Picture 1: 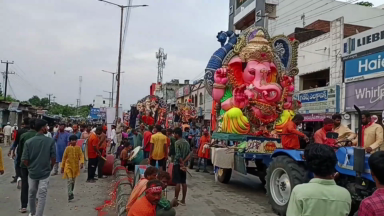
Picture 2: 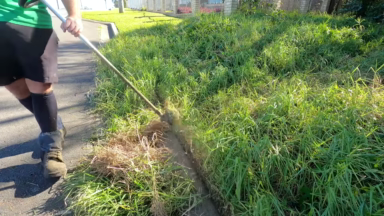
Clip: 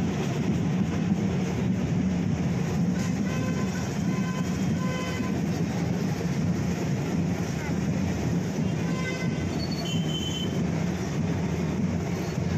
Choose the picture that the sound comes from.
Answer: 1